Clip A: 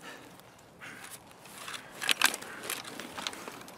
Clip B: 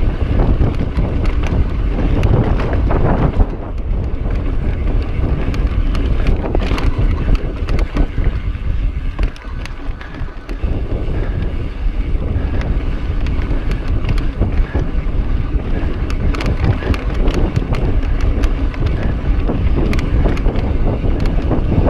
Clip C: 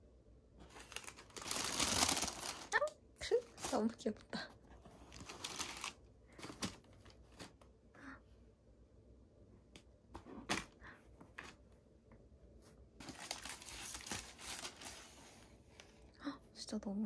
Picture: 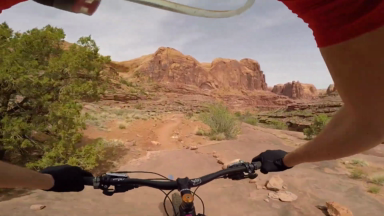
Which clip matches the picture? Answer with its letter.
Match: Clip B